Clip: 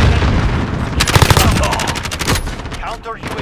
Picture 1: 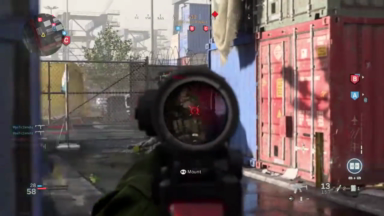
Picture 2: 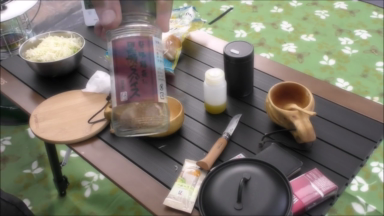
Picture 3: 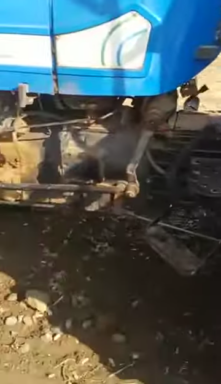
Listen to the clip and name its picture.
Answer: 1